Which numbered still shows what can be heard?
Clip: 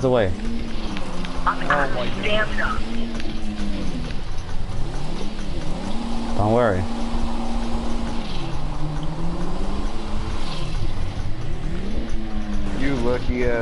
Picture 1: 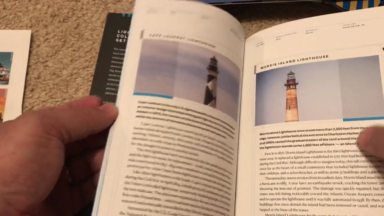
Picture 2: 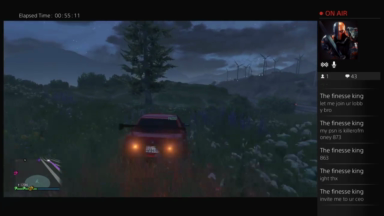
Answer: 2